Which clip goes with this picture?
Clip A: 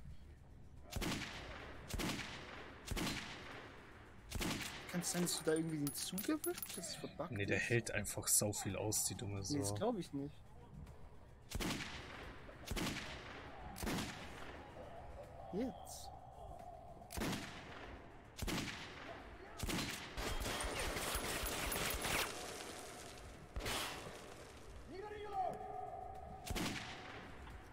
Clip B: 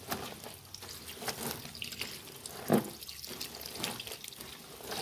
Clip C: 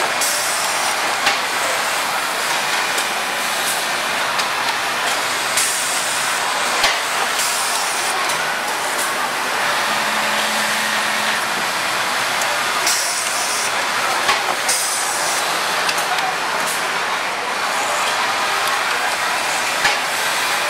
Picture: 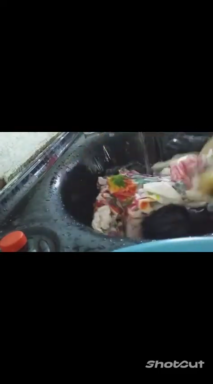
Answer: B